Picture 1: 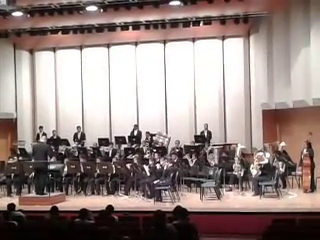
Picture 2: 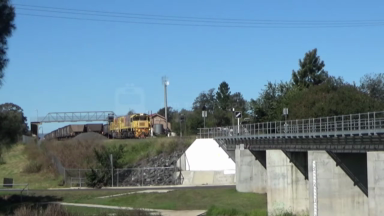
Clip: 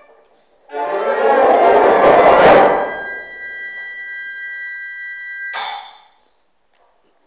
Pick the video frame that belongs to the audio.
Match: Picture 1